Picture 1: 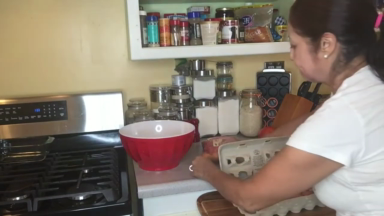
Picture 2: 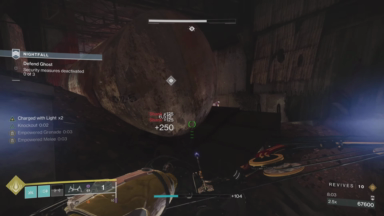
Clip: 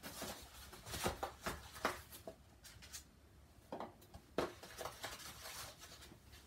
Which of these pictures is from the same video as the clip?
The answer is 1